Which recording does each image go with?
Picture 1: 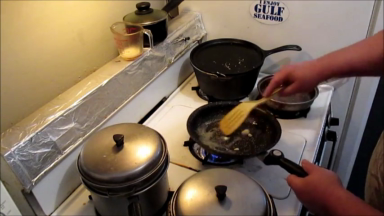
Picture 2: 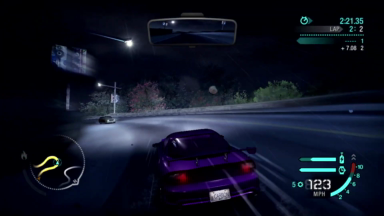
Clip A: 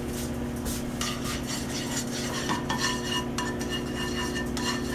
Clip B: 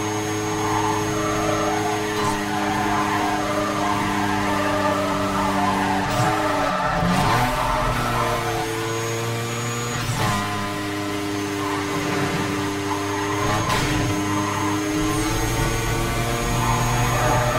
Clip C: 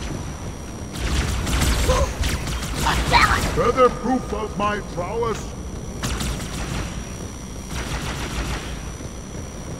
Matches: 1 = A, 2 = B